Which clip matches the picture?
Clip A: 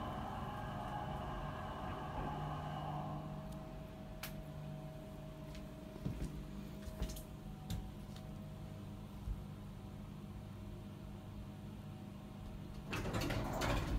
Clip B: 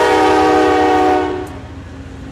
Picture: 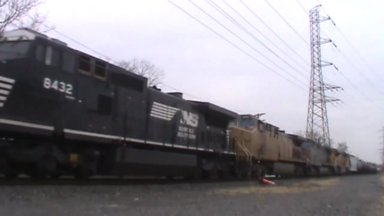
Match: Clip B